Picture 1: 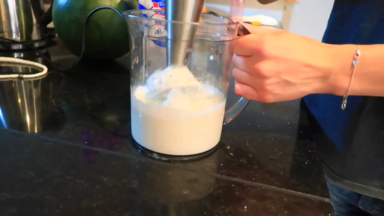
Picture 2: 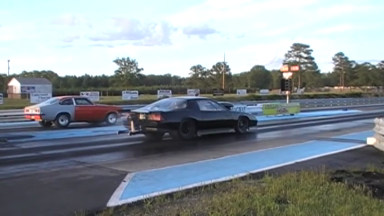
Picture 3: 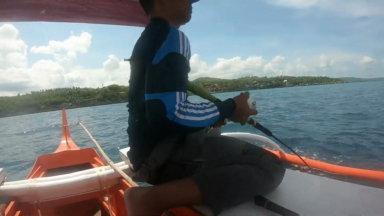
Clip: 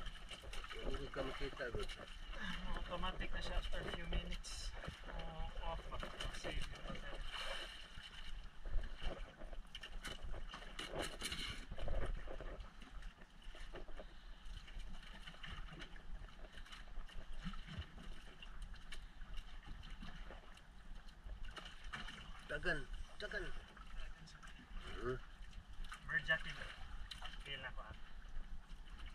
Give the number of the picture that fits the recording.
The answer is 3